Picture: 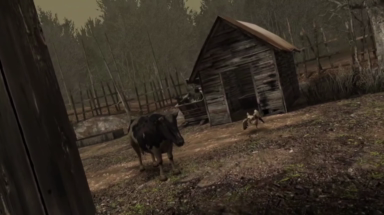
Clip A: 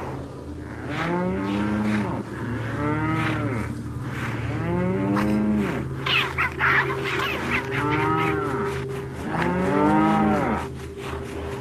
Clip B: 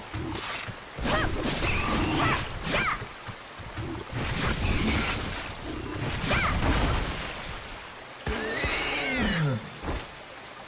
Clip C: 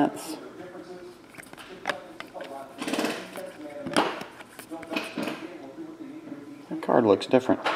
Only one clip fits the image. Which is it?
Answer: A